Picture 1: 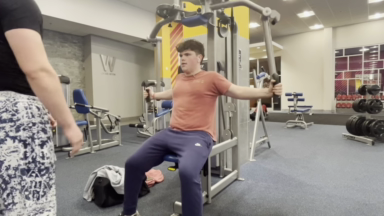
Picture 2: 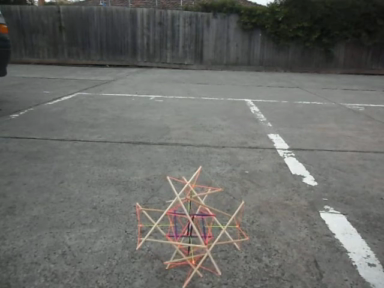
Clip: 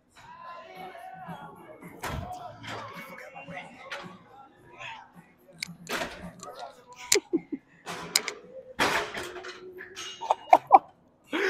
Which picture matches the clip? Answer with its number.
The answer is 1